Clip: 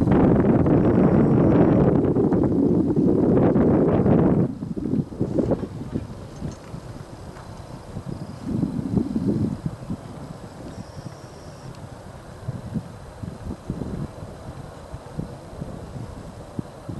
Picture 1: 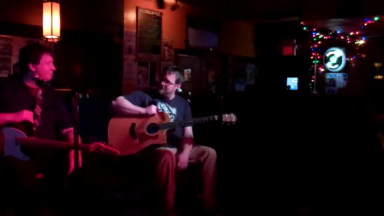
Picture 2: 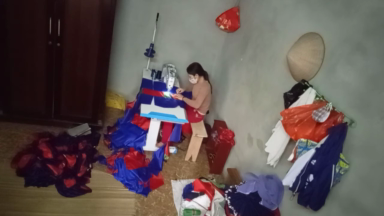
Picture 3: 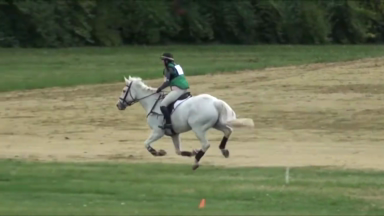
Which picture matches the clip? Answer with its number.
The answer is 3